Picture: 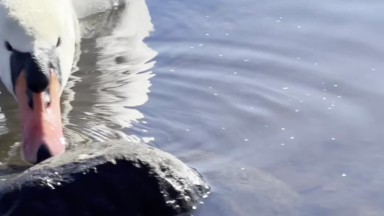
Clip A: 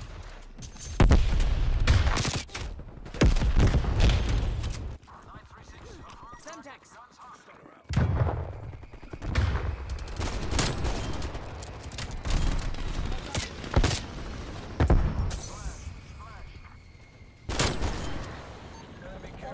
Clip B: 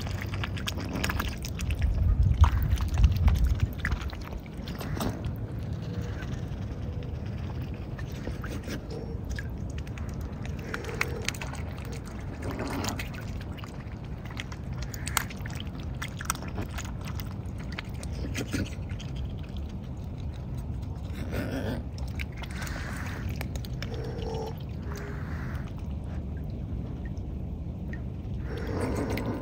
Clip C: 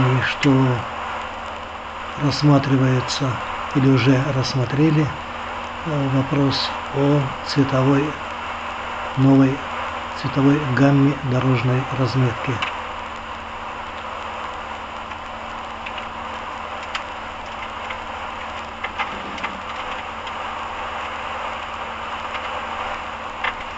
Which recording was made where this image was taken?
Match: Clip B